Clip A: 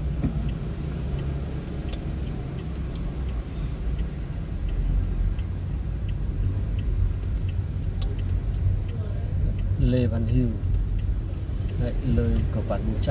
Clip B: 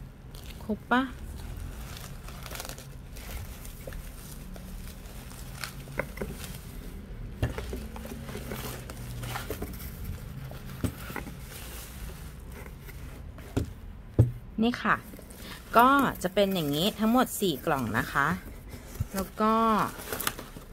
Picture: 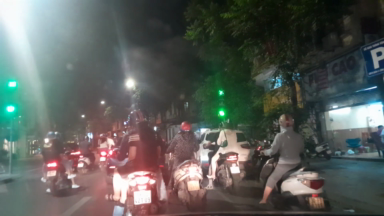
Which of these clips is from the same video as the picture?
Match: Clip A